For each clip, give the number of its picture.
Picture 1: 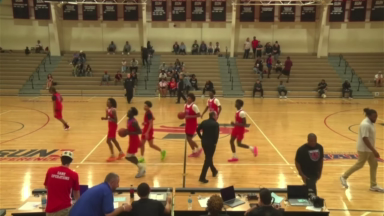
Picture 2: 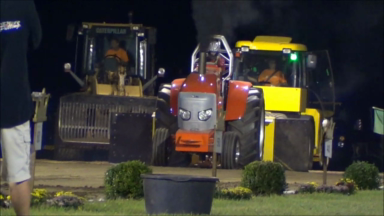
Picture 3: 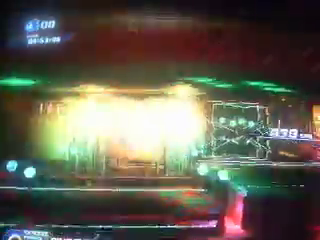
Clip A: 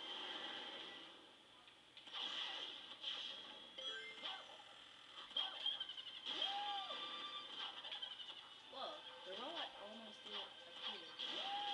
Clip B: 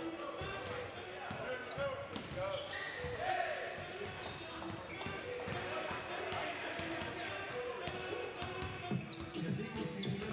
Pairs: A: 3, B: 1